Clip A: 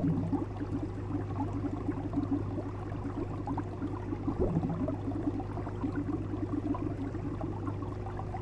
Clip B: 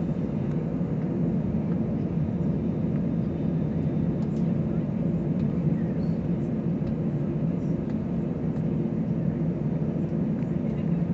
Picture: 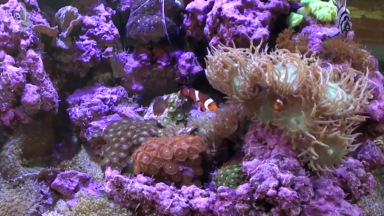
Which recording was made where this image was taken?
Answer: A